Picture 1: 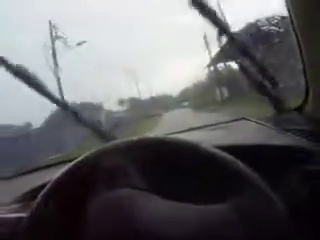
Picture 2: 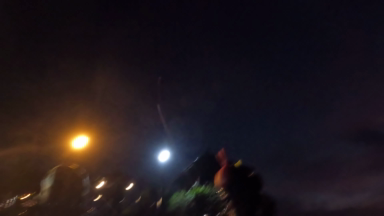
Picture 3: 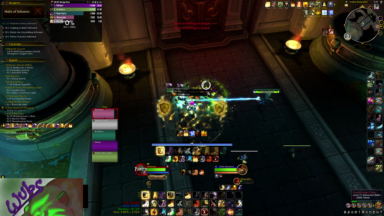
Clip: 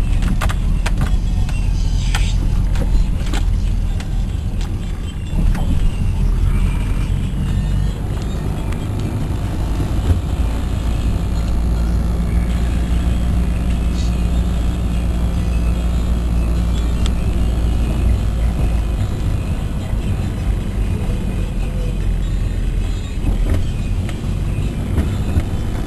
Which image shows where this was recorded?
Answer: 1